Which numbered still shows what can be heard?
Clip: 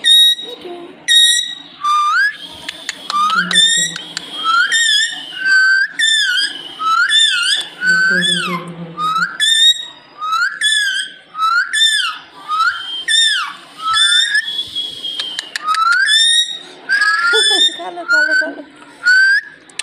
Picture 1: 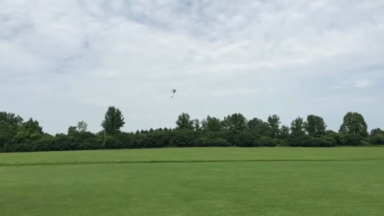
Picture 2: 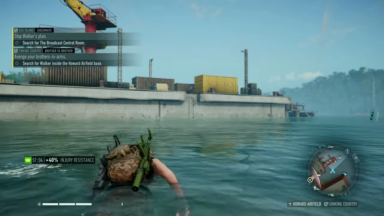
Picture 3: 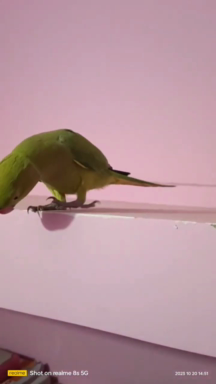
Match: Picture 3